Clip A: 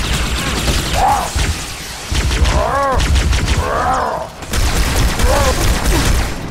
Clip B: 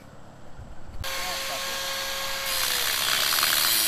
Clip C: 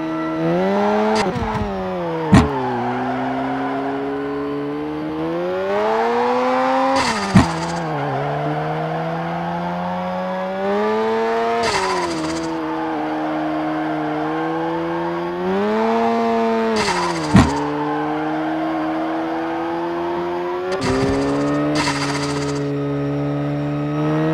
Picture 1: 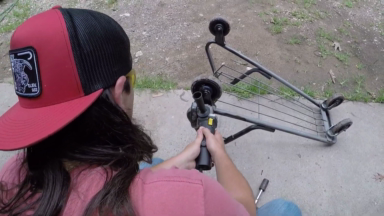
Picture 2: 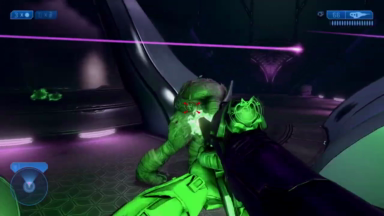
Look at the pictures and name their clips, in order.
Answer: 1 B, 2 A